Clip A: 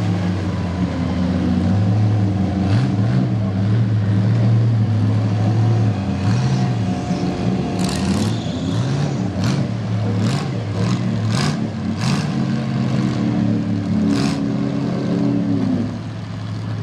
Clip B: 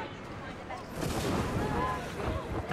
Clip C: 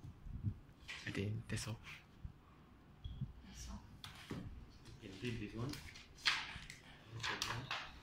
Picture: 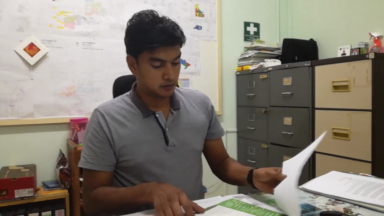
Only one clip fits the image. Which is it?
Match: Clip C